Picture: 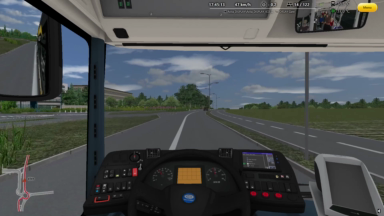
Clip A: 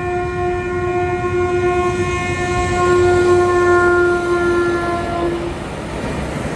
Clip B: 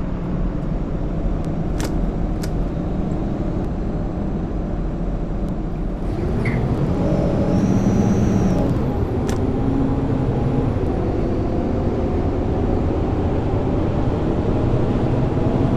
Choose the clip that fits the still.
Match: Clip B